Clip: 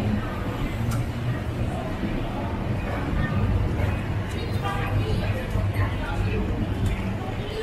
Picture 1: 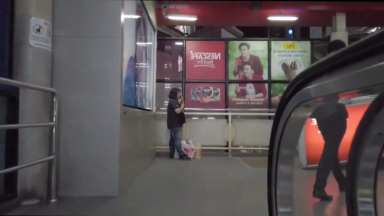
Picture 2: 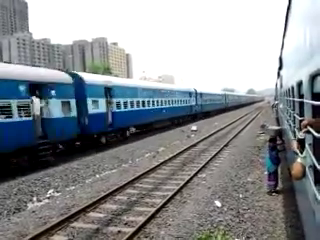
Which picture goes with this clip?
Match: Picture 1